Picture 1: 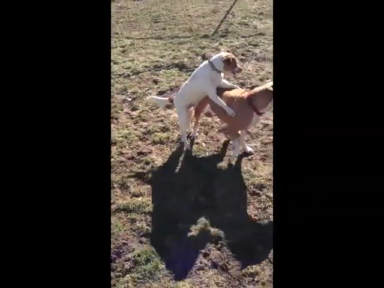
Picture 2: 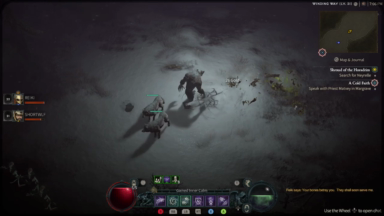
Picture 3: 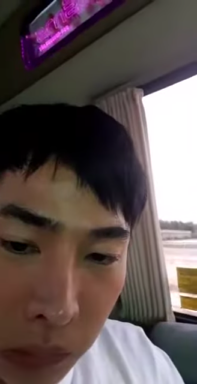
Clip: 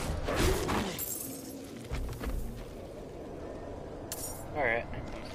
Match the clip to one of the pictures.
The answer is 2